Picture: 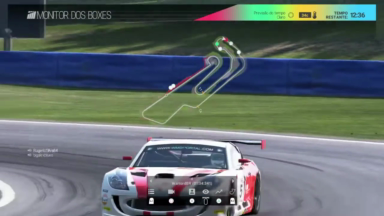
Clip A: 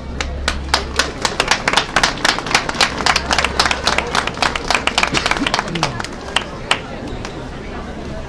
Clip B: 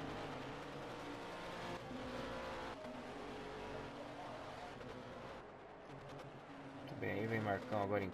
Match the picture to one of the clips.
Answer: B